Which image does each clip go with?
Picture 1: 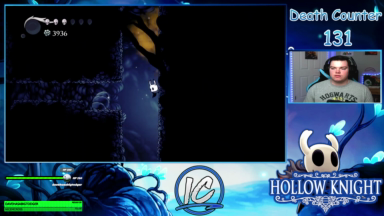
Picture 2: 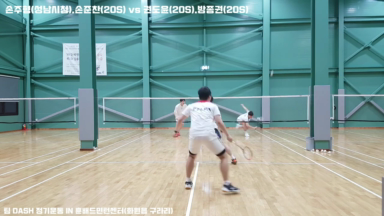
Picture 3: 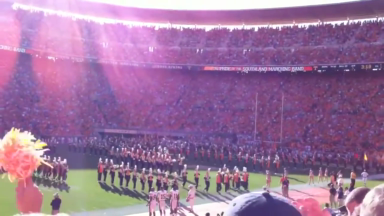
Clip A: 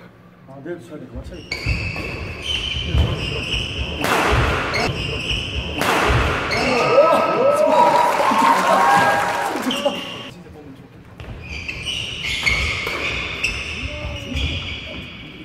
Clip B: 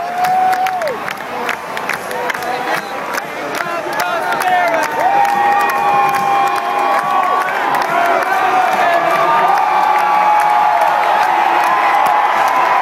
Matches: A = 2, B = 3